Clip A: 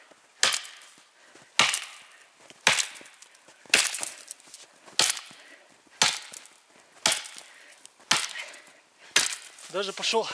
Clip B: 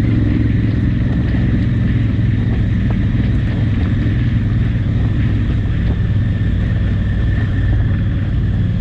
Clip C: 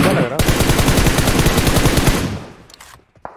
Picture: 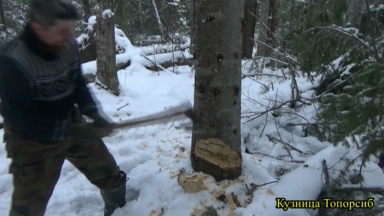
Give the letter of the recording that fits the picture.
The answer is A